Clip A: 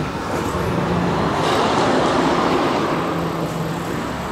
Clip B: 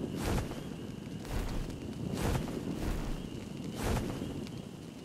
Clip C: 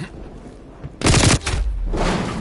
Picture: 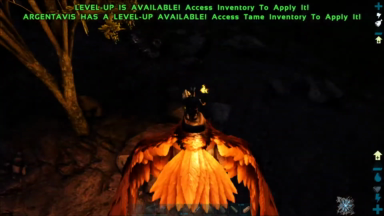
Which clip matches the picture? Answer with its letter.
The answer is B